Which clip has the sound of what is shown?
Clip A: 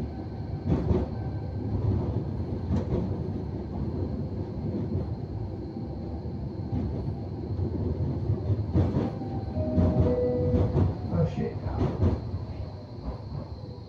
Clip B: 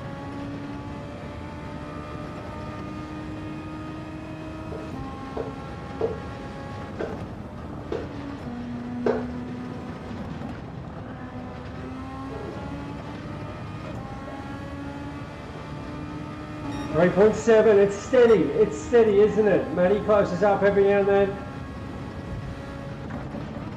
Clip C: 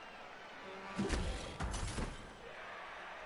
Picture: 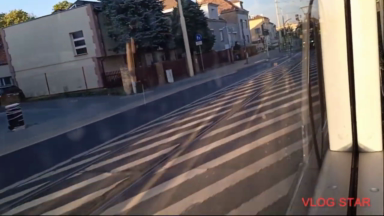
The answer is A